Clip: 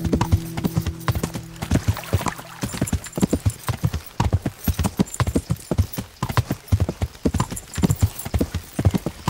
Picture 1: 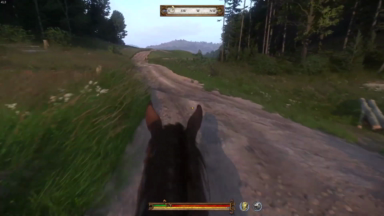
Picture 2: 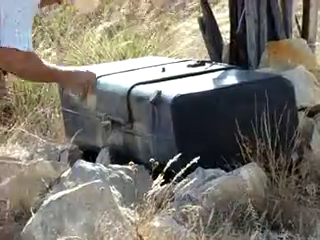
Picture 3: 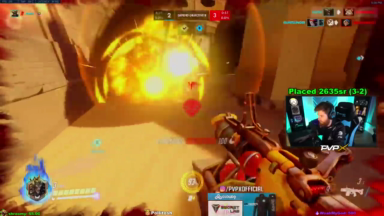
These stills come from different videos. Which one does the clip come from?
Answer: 1